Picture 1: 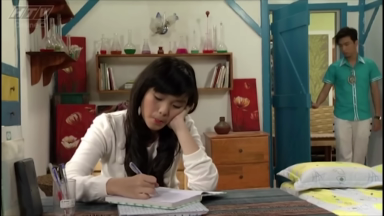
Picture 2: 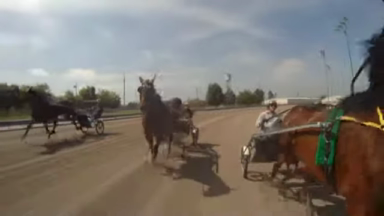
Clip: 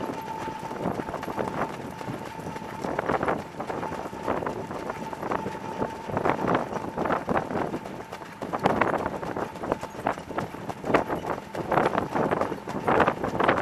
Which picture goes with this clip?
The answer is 2